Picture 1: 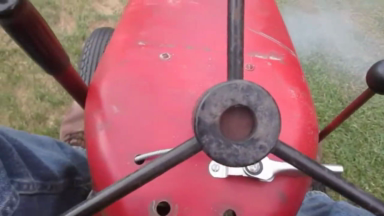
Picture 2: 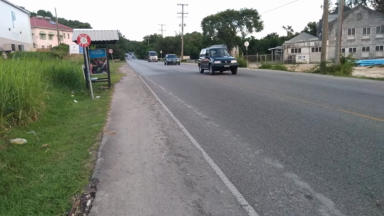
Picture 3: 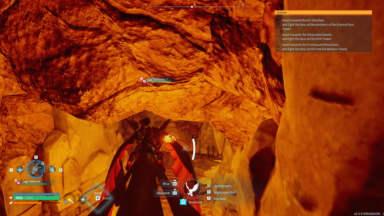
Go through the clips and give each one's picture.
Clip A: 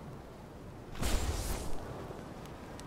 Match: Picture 3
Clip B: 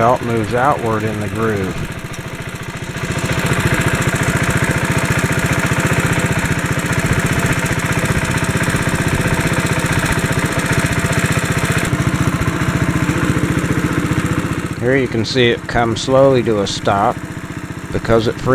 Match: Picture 1